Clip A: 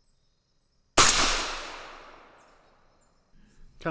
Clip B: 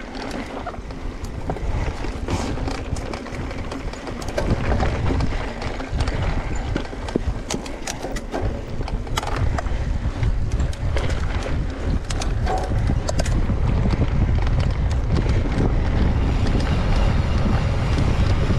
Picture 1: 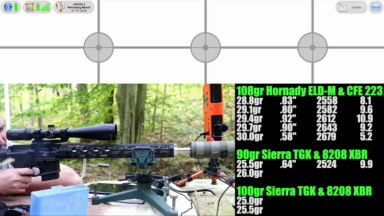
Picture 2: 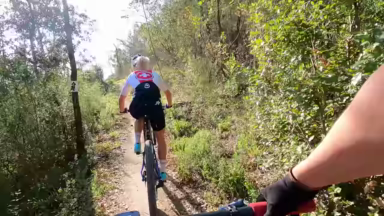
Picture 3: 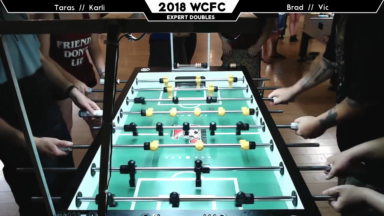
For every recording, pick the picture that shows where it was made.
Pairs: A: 1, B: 2